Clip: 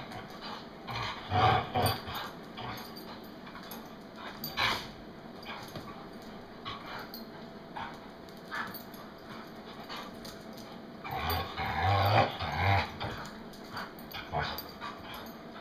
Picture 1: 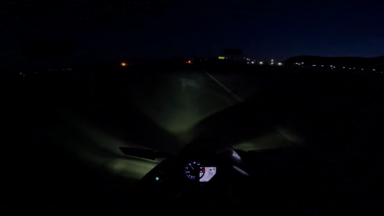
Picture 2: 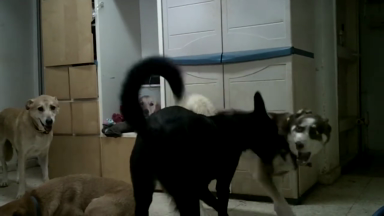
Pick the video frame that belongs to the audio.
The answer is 2